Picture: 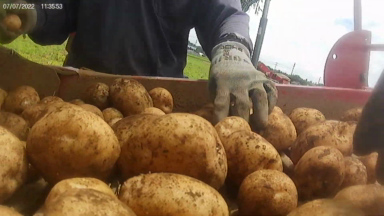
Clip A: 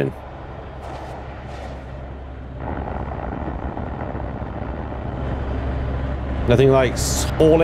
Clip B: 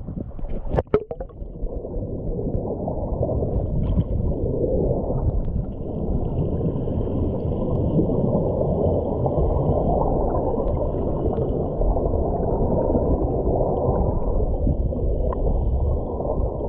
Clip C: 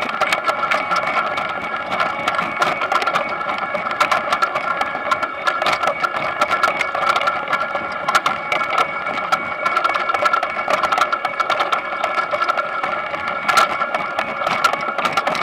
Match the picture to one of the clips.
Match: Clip C